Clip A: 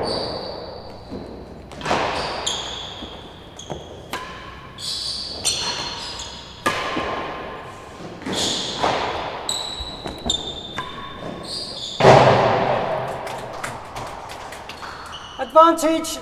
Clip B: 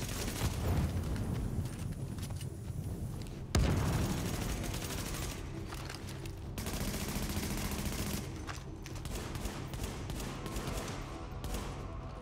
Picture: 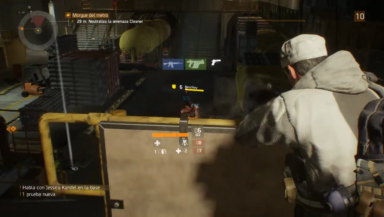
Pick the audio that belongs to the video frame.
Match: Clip B